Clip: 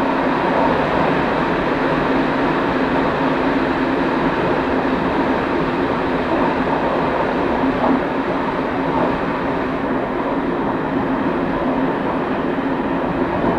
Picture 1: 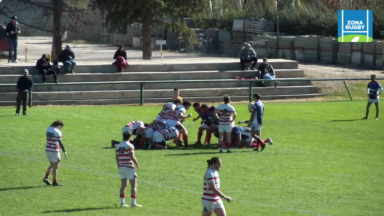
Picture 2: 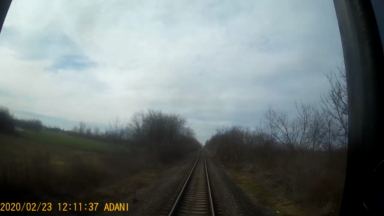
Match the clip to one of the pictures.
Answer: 2